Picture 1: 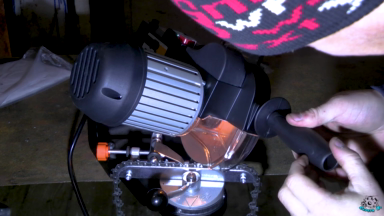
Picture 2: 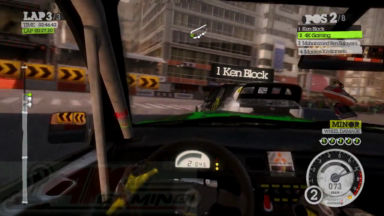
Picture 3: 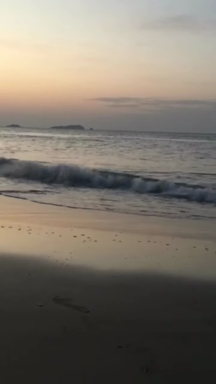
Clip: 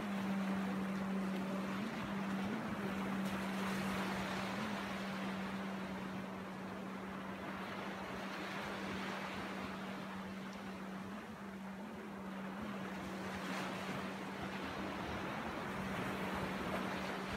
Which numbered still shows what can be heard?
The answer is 3